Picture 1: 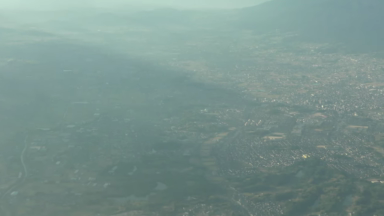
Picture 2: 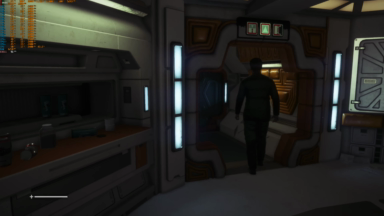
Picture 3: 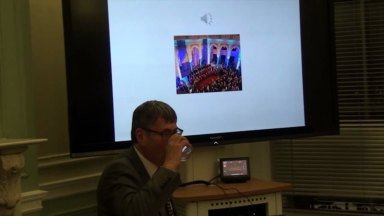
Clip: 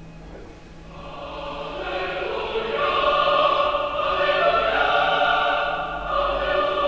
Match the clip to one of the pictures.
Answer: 3